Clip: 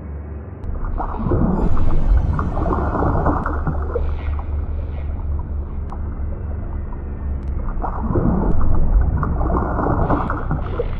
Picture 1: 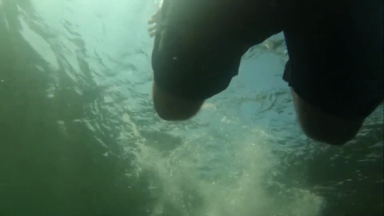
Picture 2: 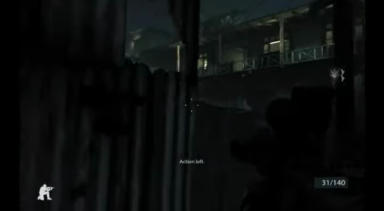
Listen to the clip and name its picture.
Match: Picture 1